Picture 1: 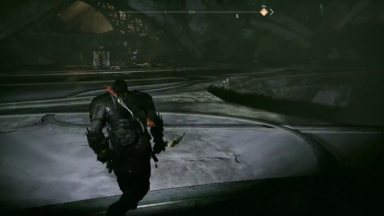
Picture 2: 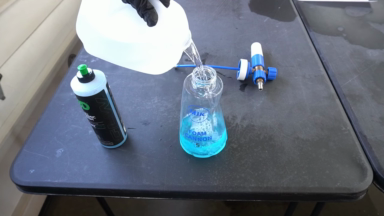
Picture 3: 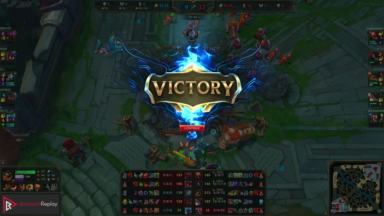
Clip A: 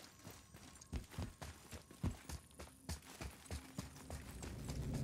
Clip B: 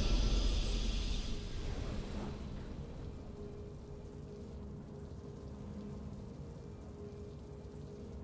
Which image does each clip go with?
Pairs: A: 1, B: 3